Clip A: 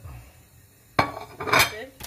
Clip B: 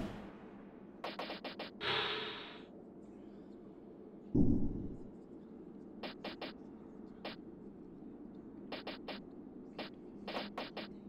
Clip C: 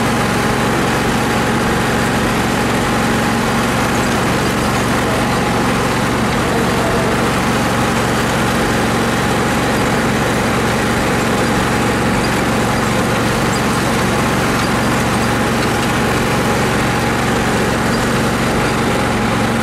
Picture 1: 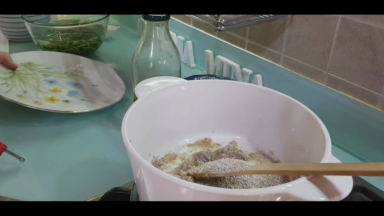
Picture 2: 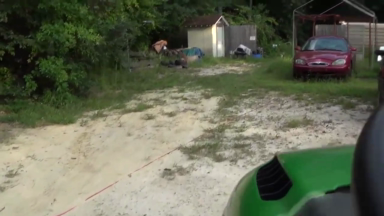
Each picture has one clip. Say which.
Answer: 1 A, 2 C